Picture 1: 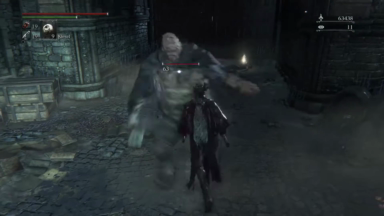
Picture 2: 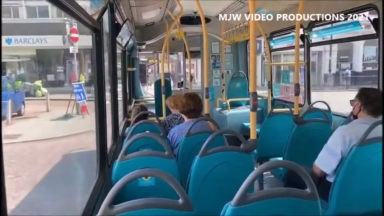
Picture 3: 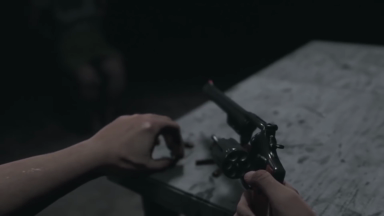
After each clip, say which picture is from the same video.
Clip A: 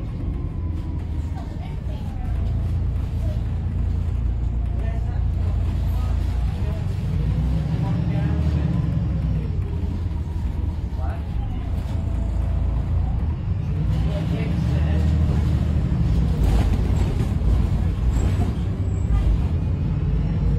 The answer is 2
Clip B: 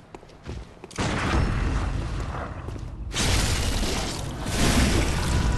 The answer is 1